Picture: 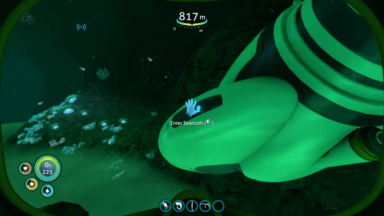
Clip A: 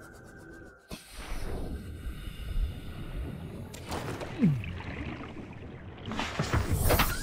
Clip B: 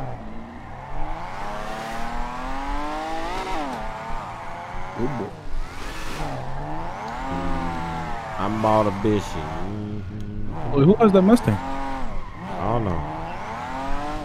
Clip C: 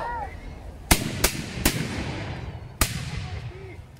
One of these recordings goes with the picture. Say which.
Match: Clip A